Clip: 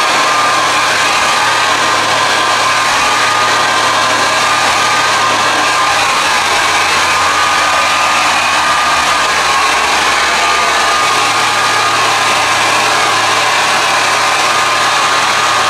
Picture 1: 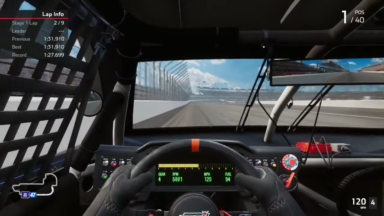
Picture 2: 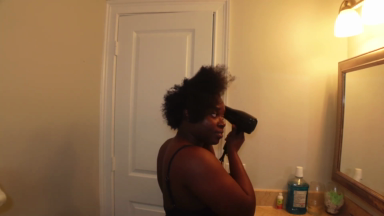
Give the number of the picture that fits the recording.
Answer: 2